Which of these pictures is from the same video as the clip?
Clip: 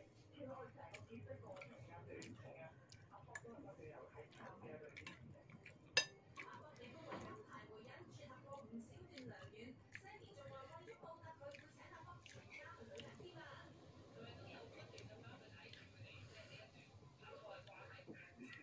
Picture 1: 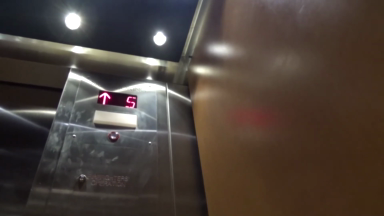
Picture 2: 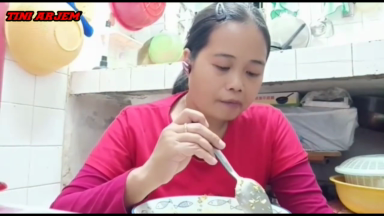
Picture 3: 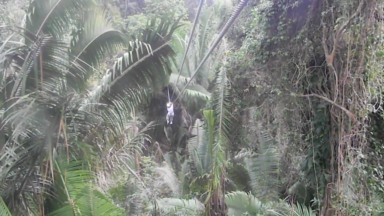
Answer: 2